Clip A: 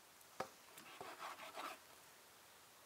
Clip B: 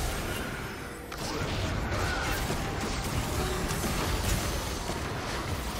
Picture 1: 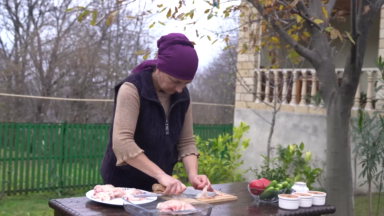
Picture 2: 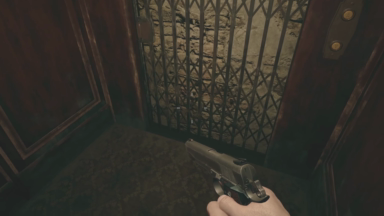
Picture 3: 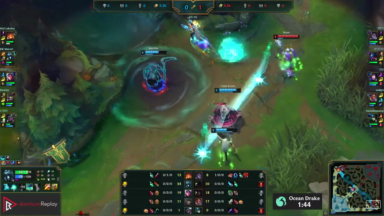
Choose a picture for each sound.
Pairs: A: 1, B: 3